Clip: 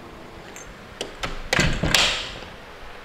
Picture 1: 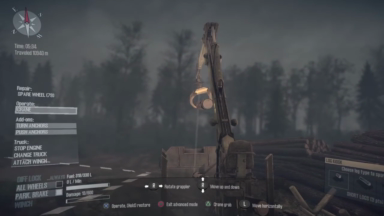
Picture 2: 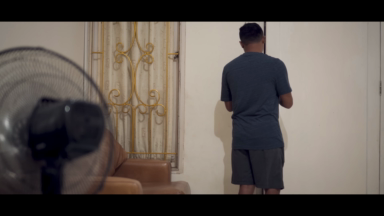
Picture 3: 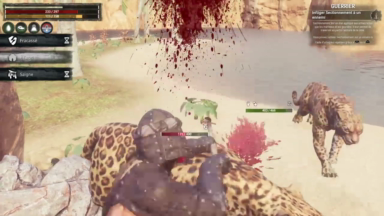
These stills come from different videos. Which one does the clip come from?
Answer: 2